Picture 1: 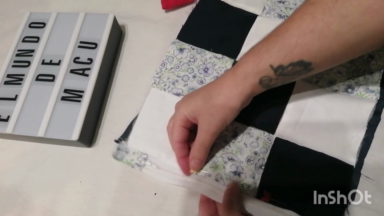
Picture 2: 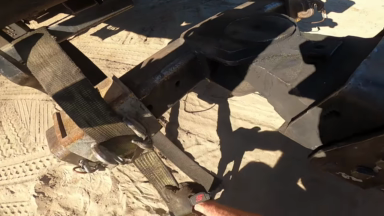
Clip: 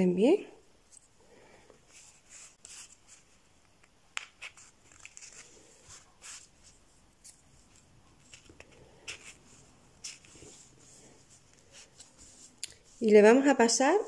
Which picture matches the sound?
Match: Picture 1